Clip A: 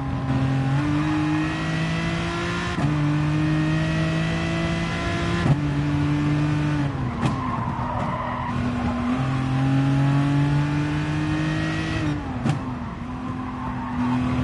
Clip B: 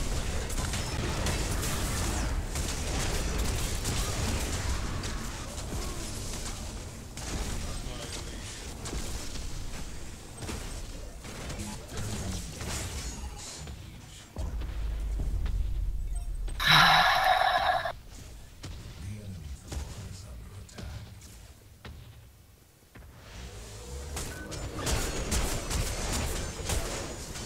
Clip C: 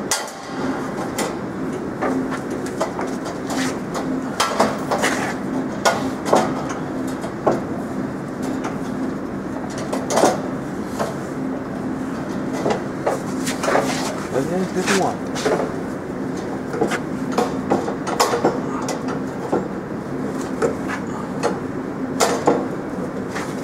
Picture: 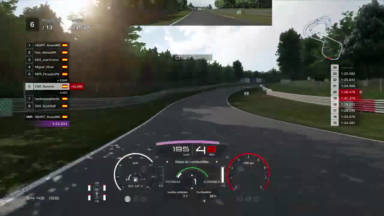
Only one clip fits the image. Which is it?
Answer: A